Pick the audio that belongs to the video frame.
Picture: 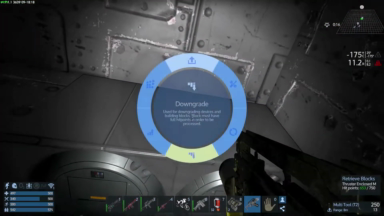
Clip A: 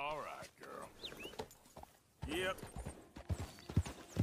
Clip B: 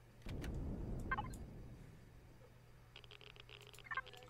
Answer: B